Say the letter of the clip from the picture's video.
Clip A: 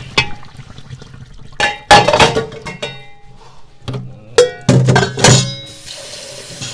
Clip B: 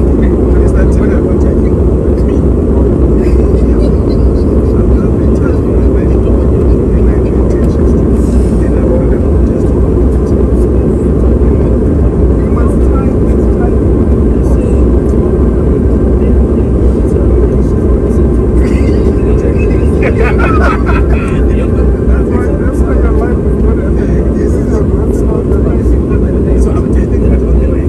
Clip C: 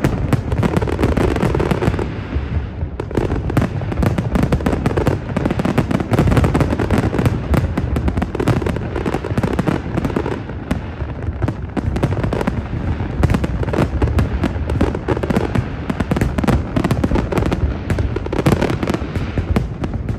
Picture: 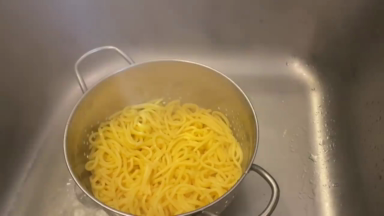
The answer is A